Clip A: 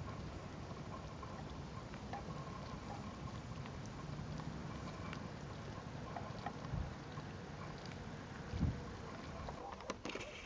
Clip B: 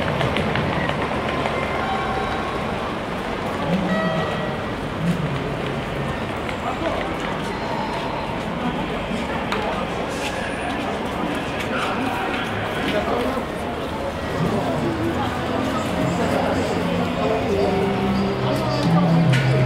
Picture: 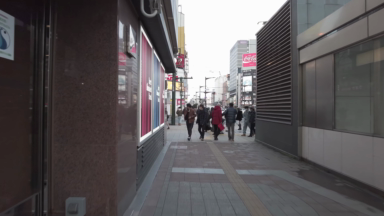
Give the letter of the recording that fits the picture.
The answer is B